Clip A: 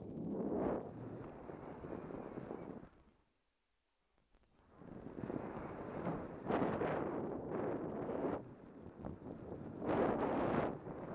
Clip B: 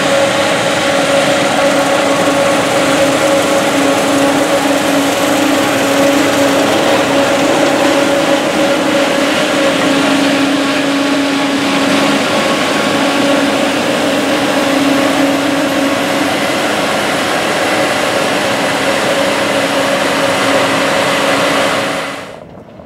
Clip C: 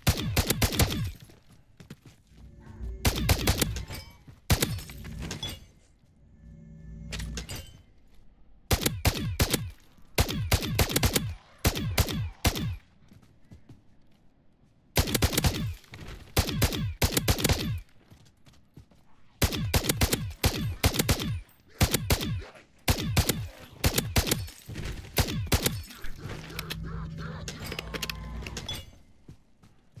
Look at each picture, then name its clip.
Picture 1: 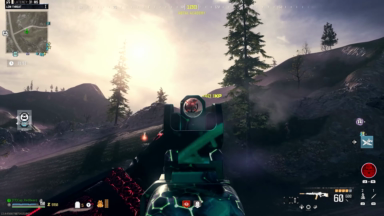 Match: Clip C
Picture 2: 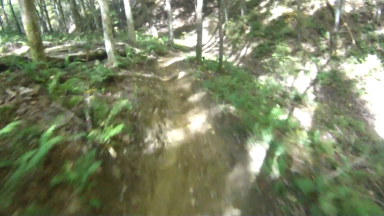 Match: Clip A